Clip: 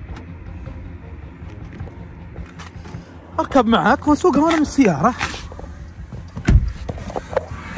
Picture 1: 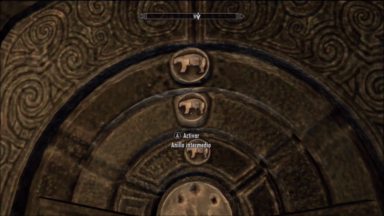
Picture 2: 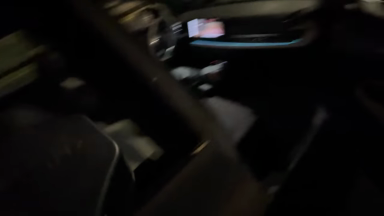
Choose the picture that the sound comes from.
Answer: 2